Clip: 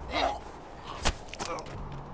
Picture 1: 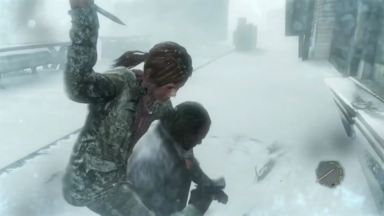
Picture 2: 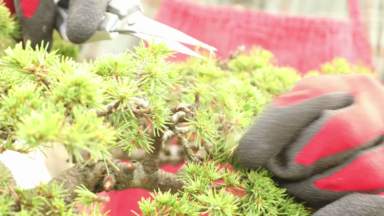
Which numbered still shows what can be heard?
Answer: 1